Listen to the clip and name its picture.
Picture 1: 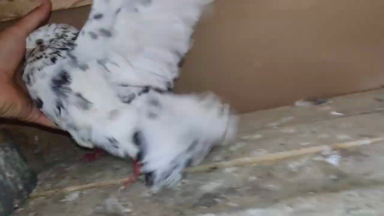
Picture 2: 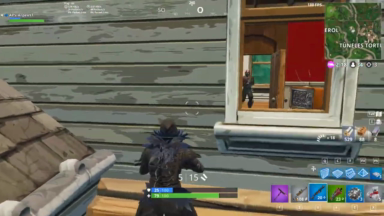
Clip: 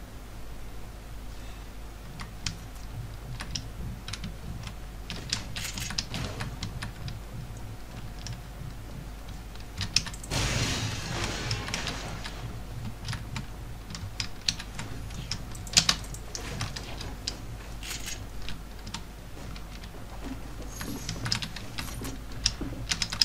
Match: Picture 2